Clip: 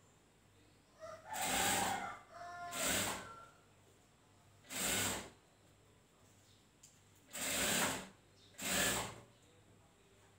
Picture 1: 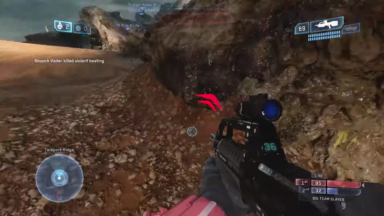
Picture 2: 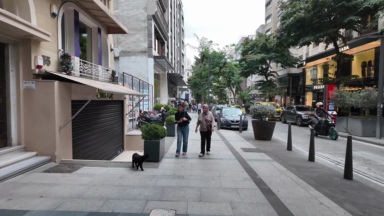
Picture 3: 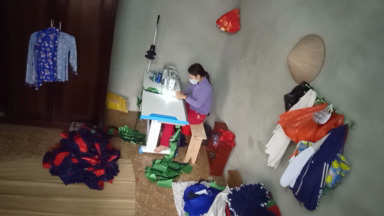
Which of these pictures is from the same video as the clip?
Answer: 3